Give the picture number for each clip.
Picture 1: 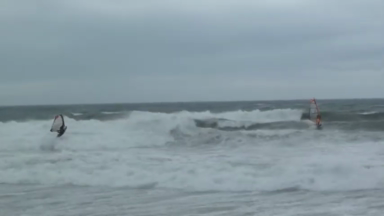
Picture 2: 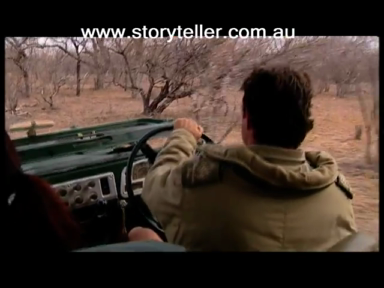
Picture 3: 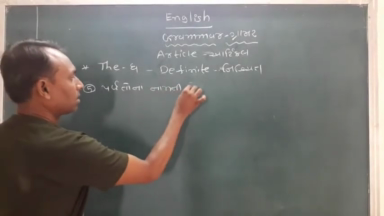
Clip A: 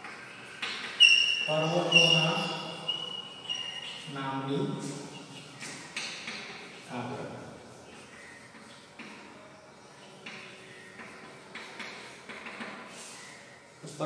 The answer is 3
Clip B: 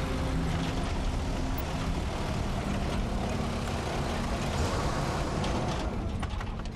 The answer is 2